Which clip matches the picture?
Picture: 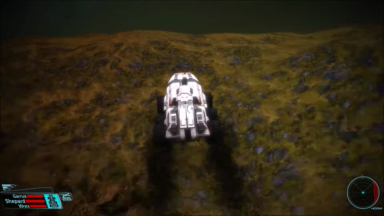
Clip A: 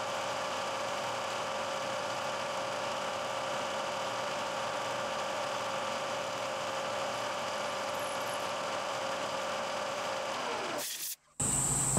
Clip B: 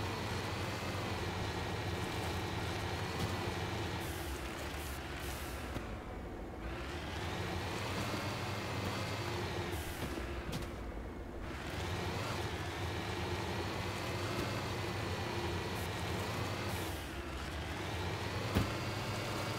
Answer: B